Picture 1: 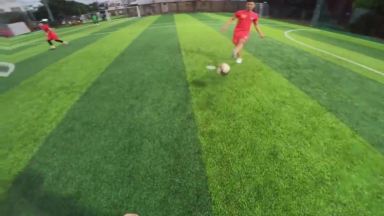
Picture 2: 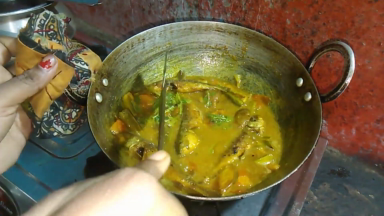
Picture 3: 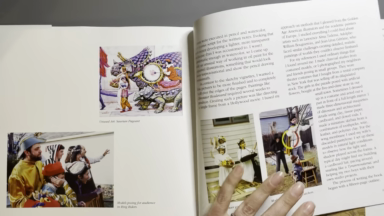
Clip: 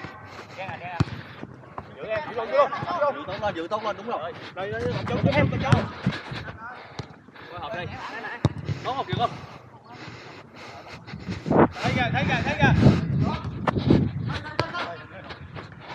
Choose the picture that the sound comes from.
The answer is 1